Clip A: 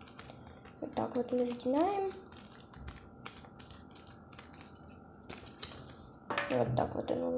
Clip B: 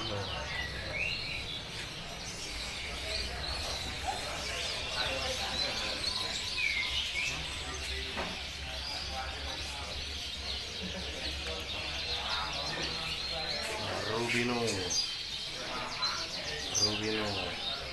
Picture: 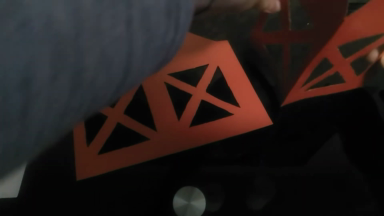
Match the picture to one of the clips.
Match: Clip A